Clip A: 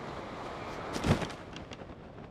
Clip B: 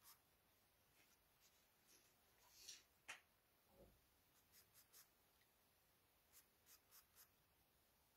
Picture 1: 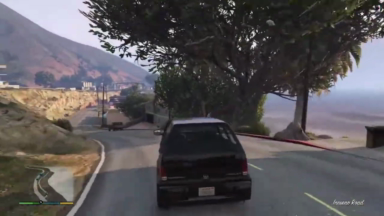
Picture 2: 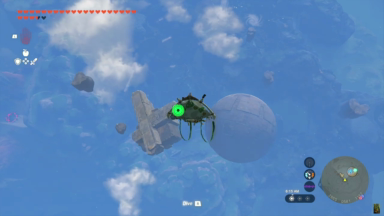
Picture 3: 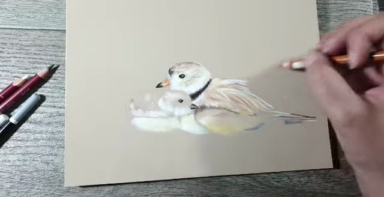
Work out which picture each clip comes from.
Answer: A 2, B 3